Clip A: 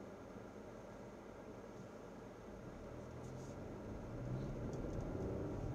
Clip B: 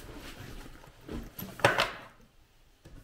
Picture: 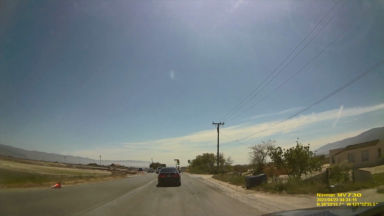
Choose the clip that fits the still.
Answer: A